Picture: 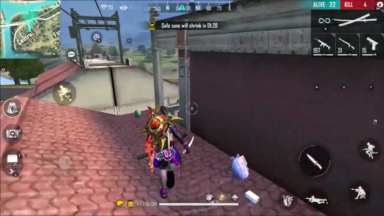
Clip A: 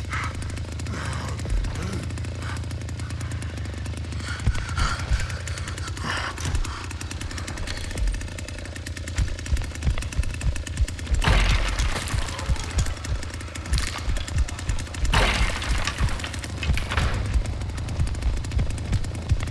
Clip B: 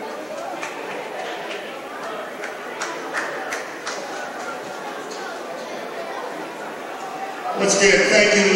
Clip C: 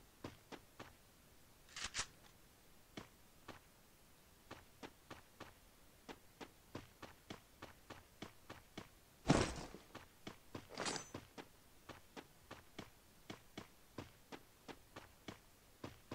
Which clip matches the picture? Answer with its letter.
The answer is C